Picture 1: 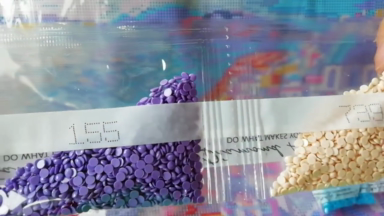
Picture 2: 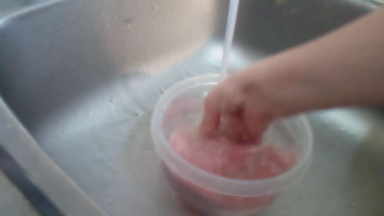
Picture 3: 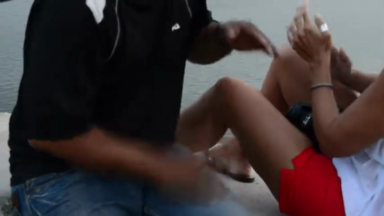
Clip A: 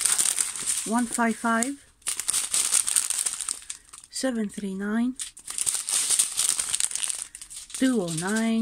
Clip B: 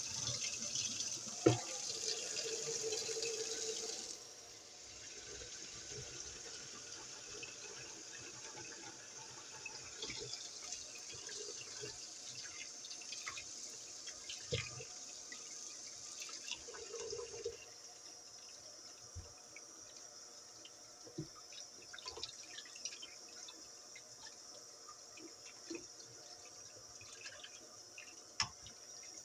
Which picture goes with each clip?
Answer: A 1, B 2